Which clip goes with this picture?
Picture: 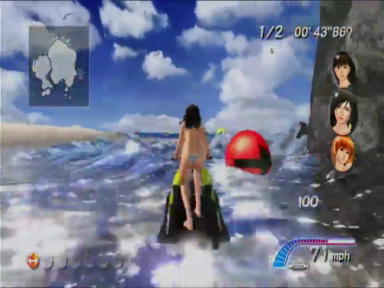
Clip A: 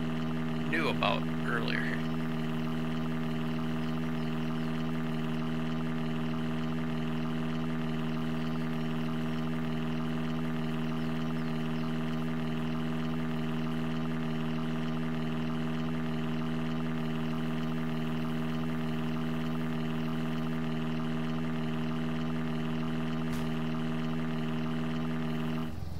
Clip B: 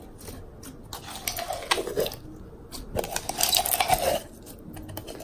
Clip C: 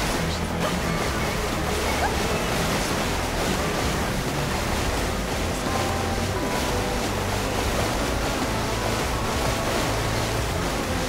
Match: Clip C